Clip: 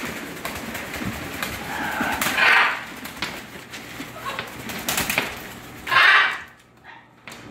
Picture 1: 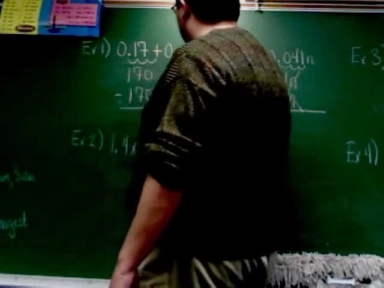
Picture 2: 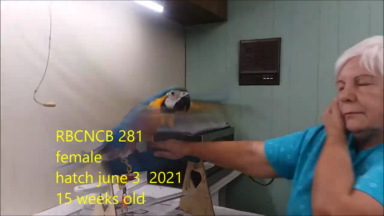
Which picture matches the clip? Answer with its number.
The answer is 2